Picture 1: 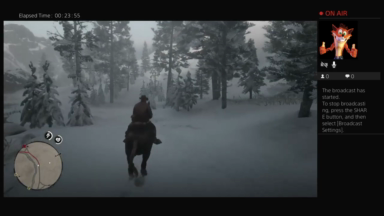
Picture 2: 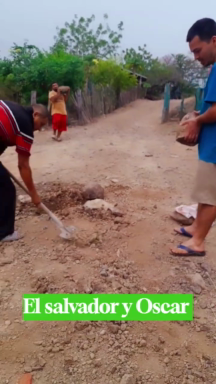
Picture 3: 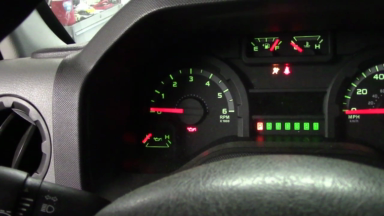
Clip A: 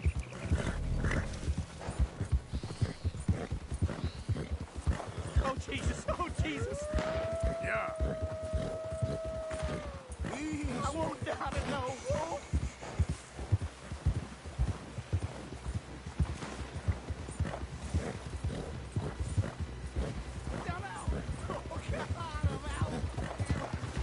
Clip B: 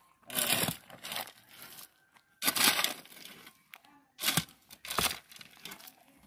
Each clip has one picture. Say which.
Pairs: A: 1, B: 2